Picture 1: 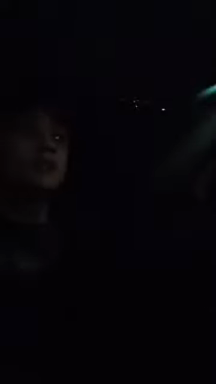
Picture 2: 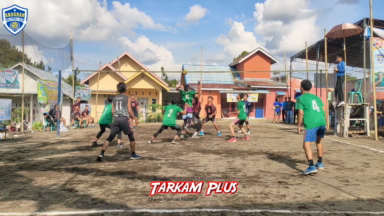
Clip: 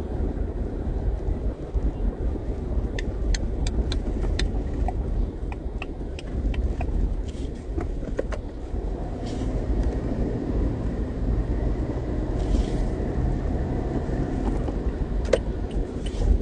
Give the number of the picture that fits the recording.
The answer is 1